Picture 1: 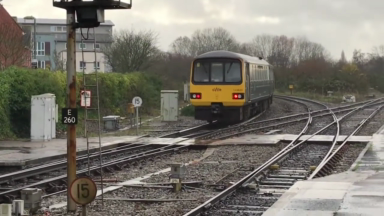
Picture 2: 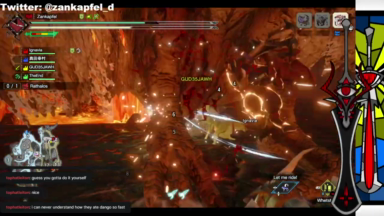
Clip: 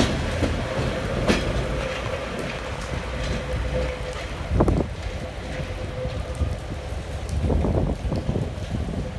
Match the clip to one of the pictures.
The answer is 1